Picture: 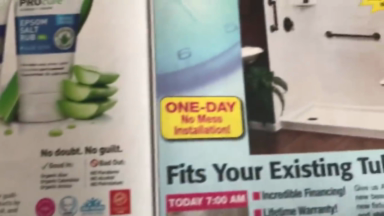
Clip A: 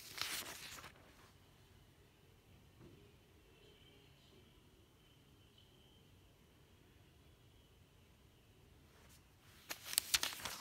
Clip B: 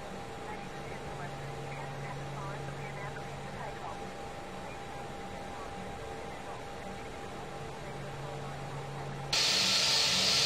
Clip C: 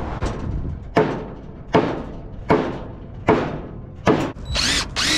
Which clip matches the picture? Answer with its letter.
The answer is A